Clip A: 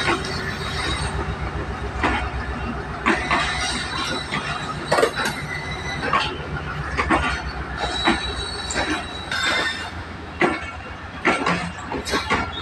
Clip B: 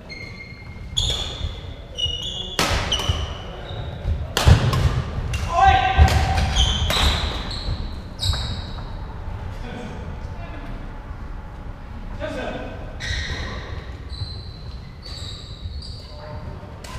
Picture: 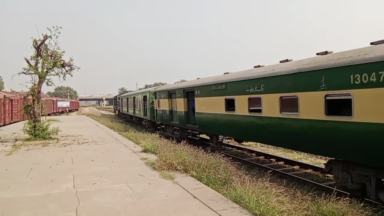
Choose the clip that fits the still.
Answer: A